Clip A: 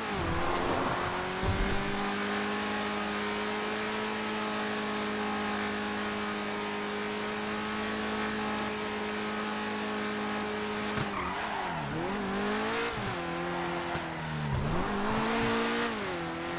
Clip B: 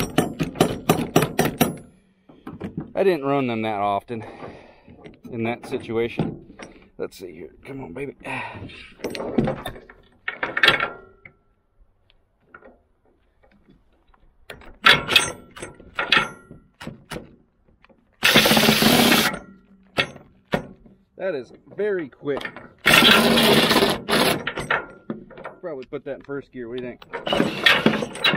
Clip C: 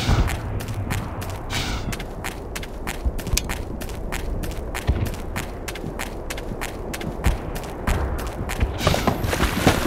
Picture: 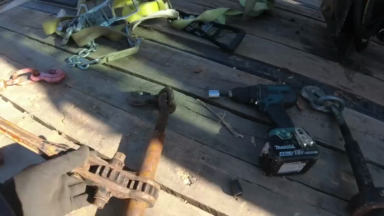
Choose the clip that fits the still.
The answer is B